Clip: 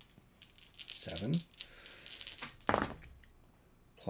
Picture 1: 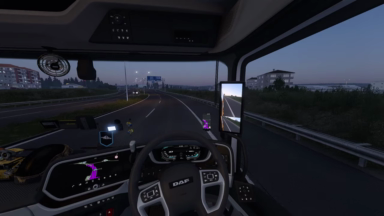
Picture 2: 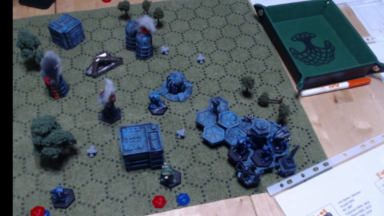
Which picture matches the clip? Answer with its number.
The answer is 2